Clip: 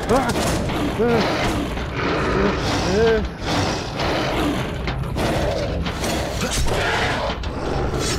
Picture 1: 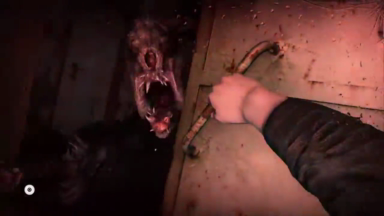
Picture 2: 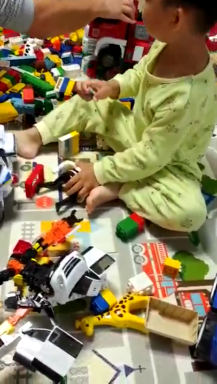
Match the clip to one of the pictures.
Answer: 1